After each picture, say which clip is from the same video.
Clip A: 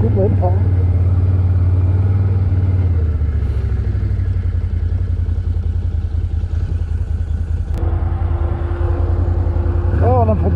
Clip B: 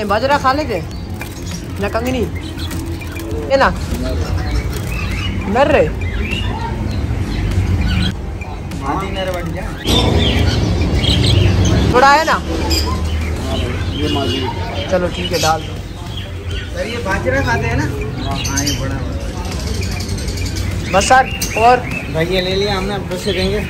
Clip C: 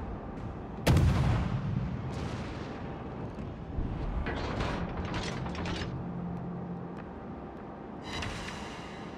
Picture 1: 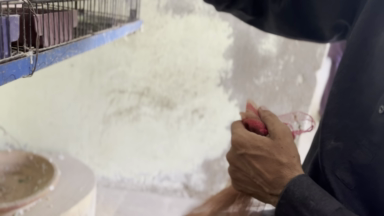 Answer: B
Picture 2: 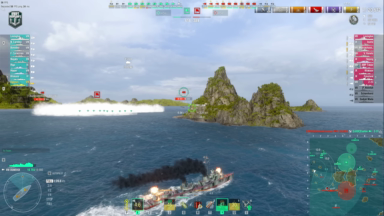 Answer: C